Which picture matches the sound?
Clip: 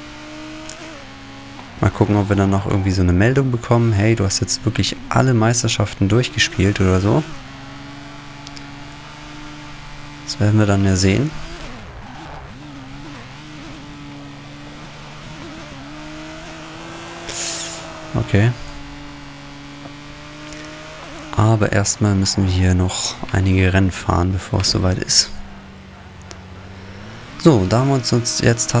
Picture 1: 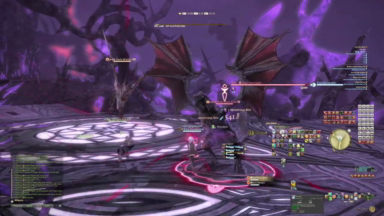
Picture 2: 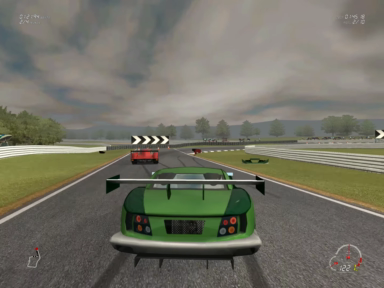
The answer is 2